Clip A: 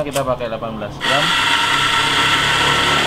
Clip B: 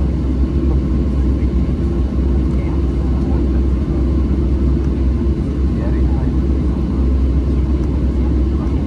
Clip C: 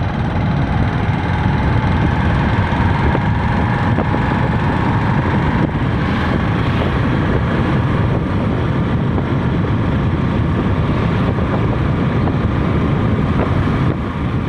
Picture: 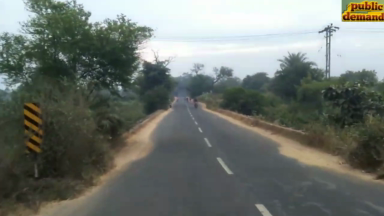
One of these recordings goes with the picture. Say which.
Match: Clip C